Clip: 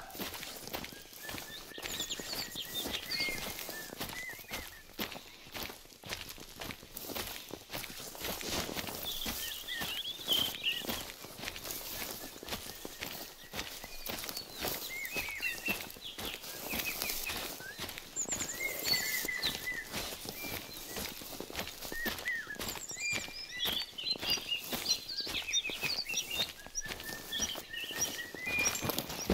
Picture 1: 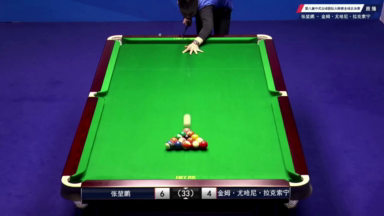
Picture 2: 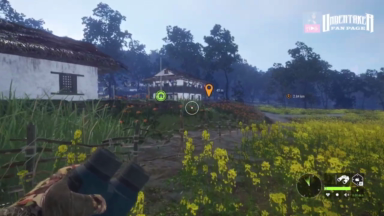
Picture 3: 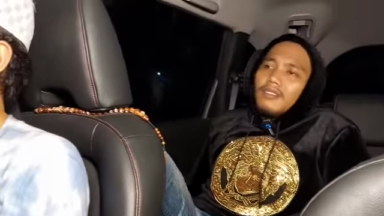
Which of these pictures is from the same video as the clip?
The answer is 2